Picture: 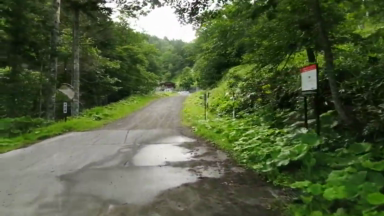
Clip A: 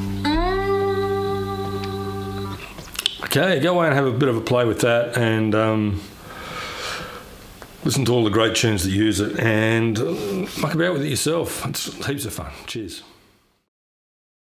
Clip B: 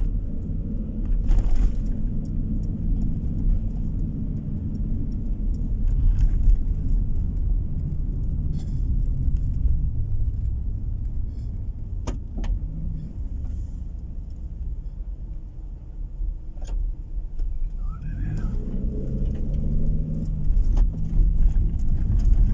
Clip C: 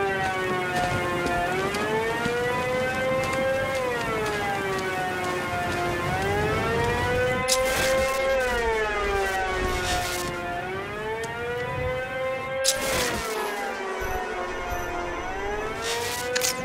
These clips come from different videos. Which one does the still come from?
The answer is B